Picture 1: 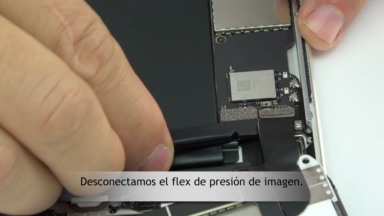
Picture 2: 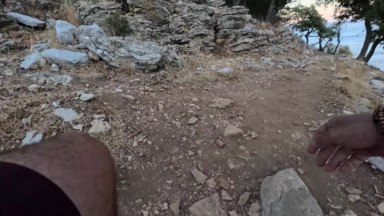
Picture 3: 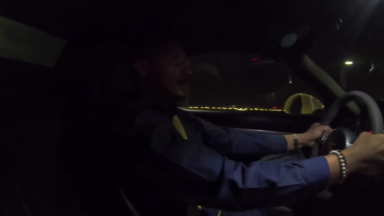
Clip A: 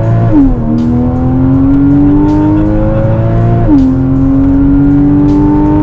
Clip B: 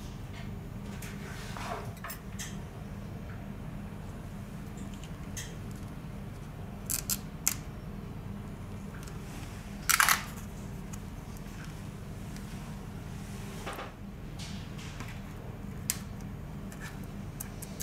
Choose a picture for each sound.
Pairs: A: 3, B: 1